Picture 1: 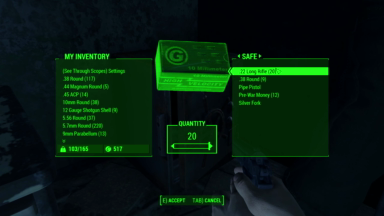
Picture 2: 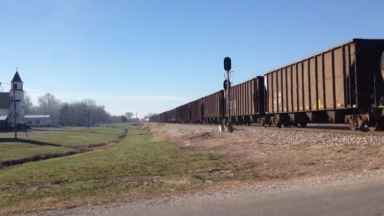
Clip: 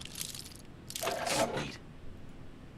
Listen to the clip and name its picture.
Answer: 1